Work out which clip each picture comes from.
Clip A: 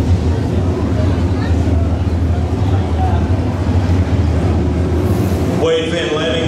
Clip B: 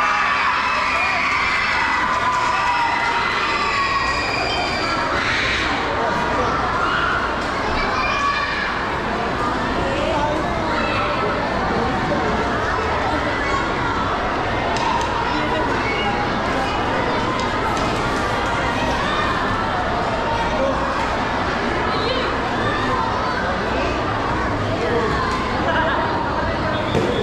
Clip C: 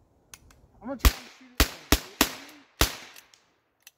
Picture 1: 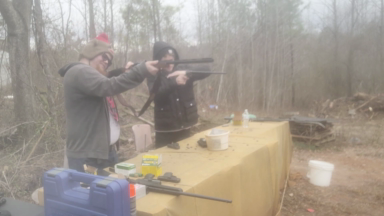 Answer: C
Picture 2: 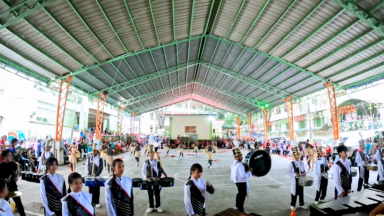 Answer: B